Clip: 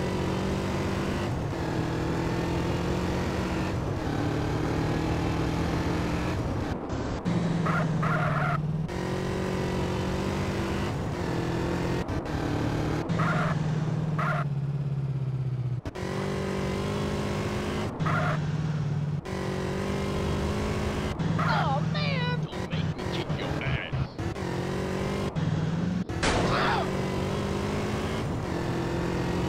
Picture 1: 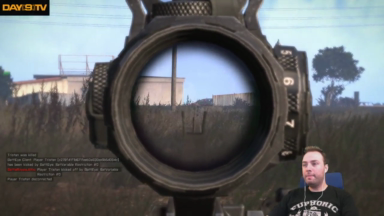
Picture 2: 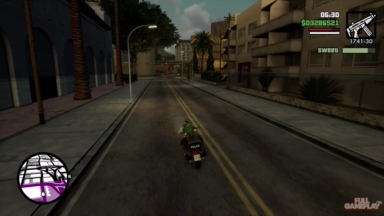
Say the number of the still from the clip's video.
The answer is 2